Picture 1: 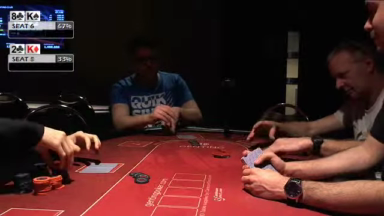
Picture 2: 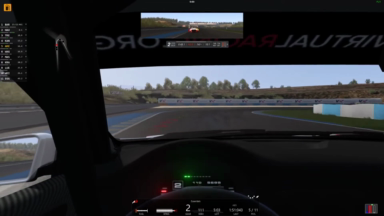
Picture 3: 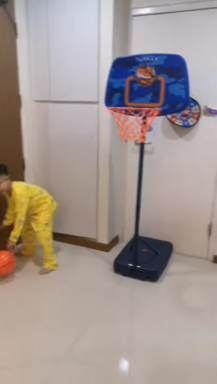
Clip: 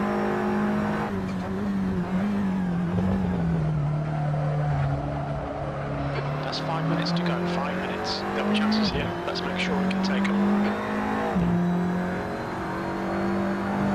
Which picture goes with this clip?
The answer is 2